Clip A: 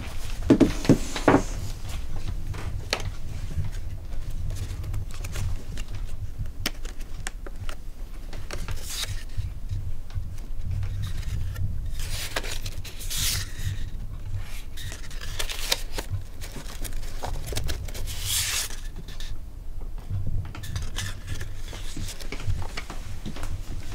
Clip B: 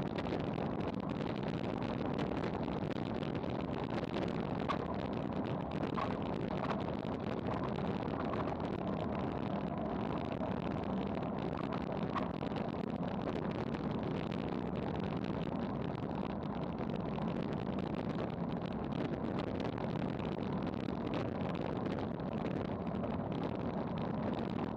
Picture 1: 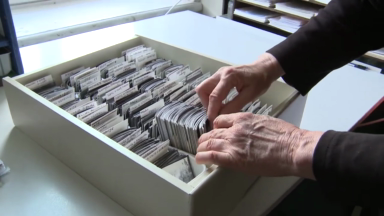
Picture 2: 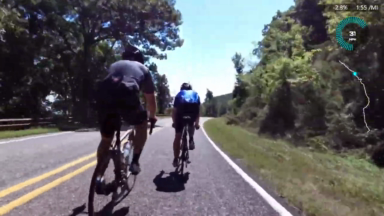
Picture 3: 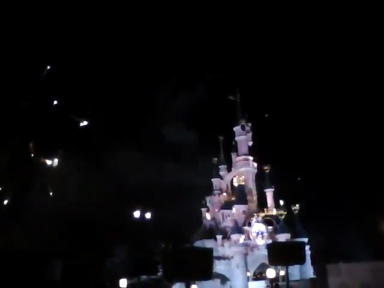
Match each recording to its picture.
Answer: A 1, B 2